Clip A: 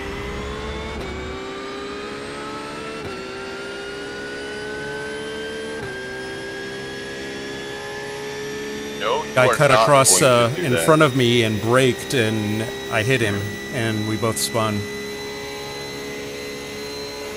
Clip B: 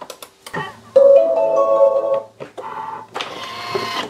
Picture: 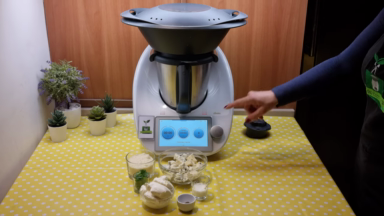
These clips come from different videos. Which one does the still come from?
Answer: B